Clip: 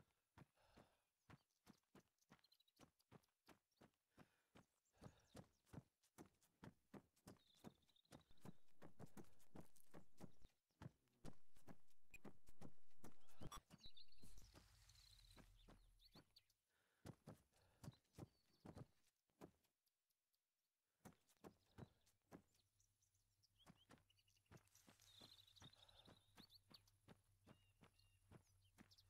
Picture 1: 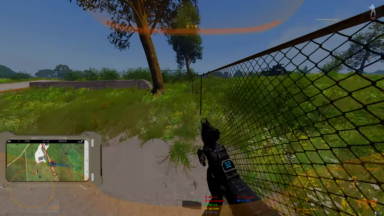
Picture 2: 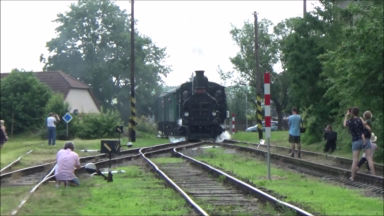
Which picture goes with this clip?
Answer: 1